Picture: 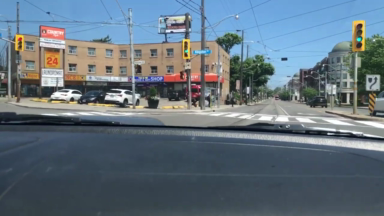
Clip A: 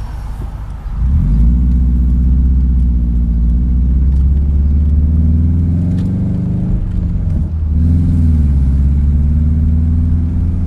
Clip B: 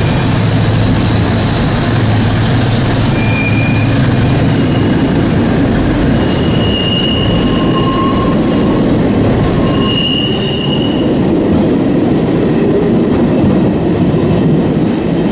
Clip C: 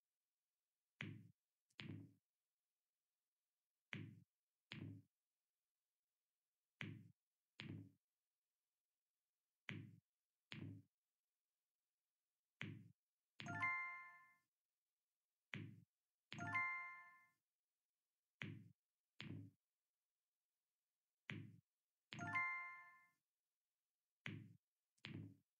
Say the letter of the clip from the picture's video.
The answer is A